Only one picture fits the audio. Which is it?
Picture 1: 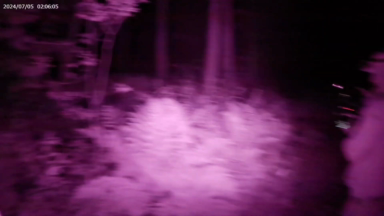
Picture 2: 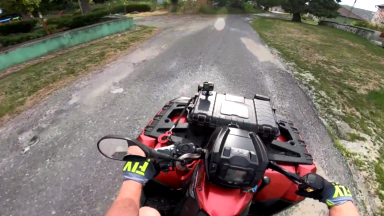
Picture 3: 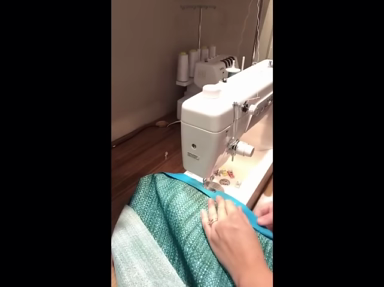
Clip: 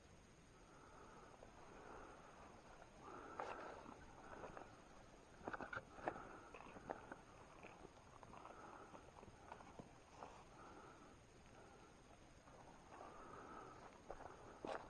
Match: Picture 1